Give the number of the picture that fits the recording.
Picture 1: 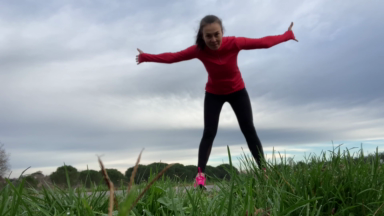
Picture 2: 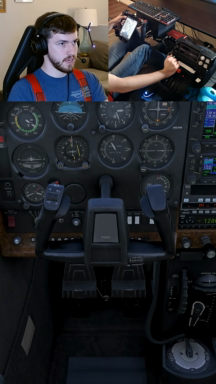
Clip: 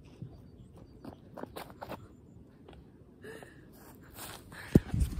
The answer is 1